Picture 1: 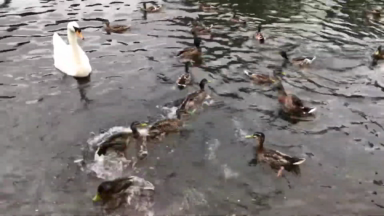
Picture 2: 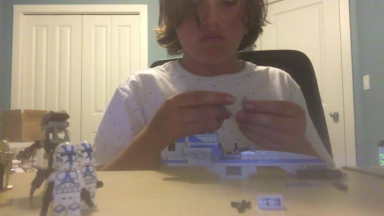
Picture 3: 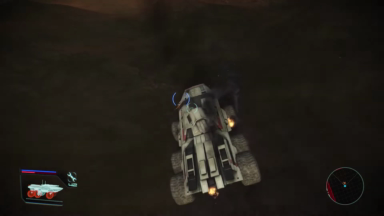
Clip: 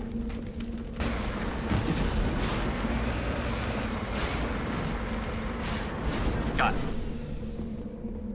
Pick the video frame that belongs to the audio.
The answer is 3